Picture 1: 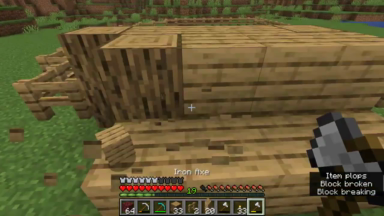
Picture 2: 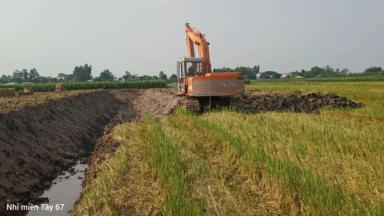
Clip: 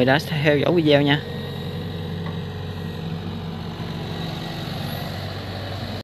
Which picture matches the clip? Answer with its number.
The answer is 2